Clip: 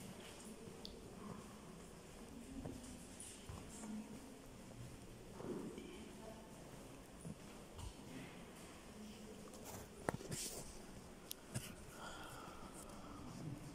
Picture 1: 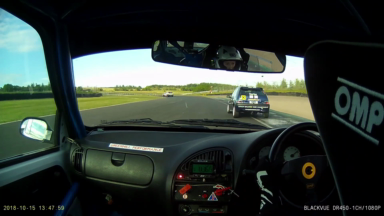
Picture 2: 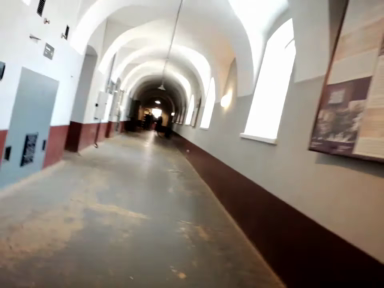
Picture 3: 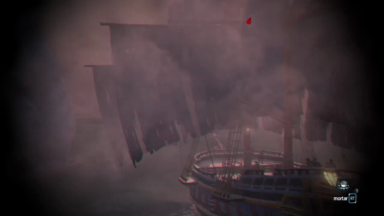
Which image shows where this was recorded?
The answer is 2